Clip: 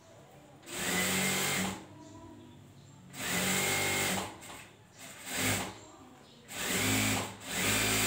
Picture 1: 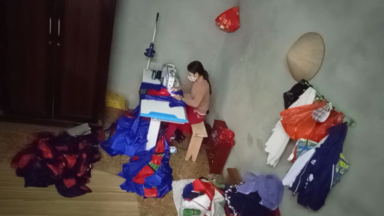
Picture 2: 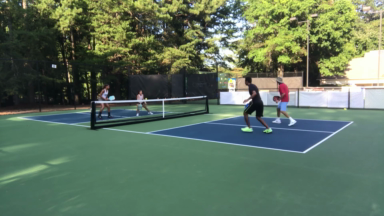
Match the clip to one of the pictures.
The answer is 1